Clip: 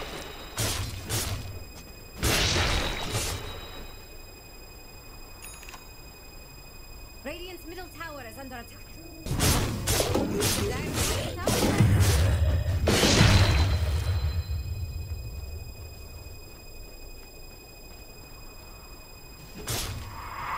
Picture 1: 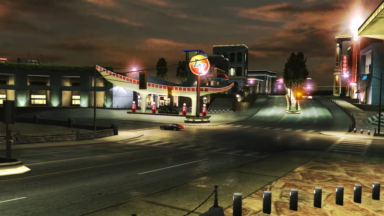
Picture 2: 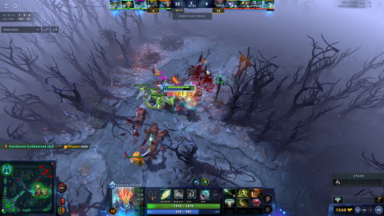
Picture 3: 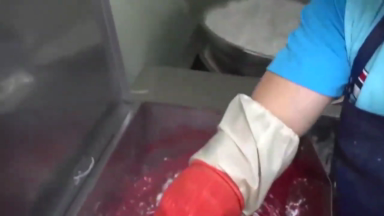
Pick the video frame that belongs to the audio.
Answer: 2